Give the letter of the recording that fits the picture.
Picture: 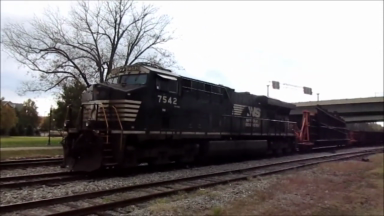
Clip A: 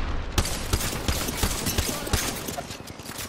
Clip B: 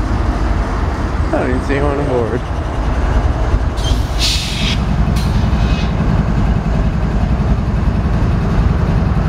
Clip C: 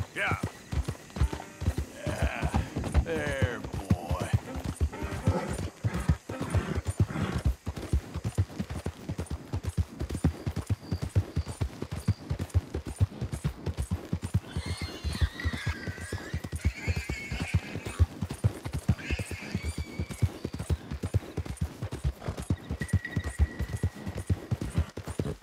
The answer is B